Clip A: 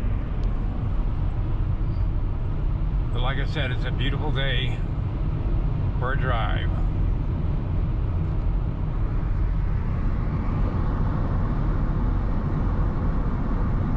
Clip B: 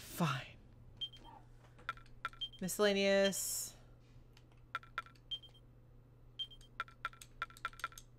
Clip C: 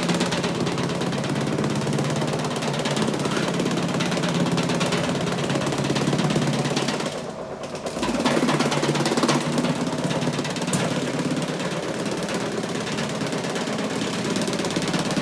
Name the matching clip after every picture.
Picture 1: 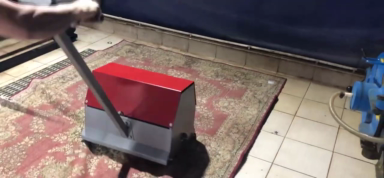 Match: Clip C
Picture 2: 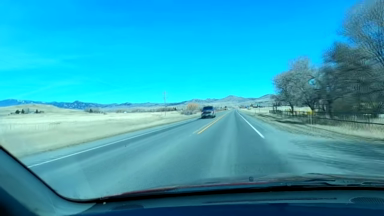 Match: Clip A